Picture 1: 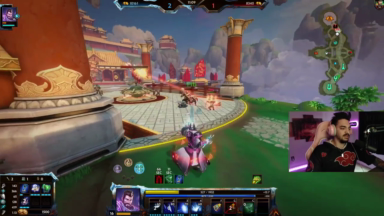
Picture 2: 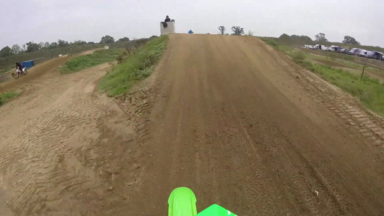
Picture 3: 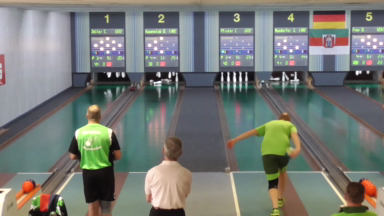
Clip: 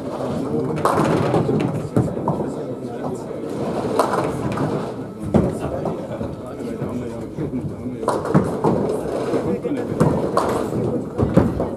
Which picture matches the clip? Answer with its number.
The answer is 3